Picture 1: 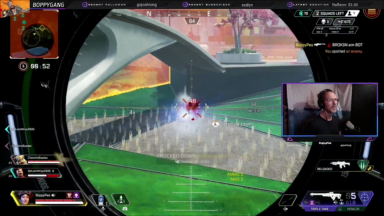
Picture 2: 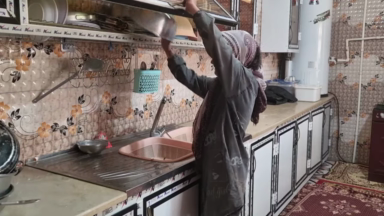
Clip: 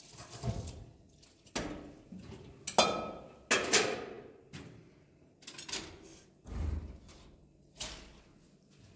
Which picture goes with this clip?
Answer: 2